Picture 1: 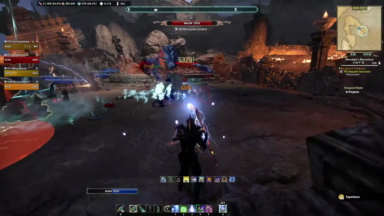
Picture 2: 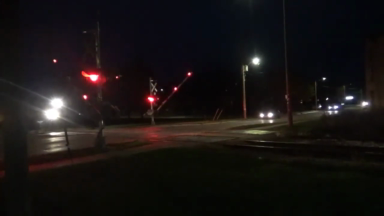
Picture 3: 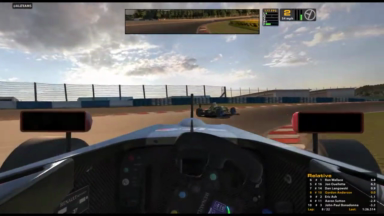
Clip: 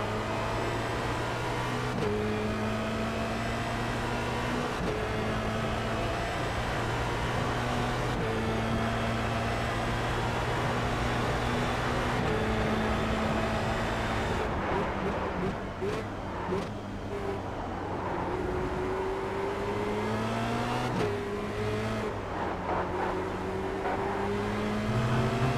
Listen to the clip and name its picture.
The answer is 3